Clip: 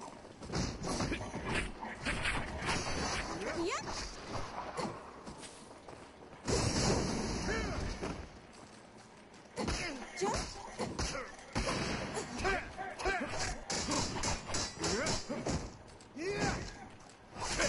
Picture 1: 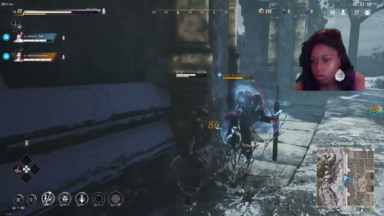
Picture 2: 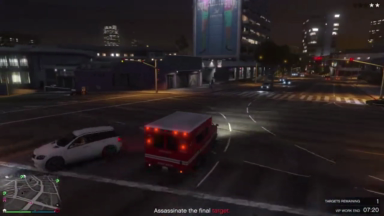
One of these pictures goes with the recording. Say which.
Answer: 1